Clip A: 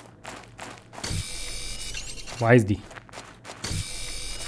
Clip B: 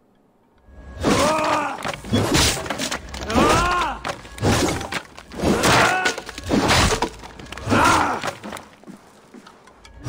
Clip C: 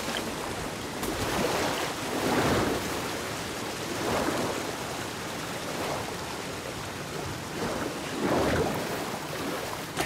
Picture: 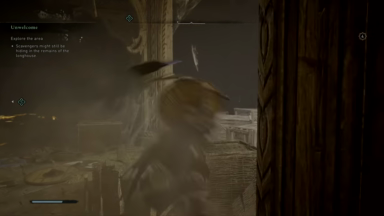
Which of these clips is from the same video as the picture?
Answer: B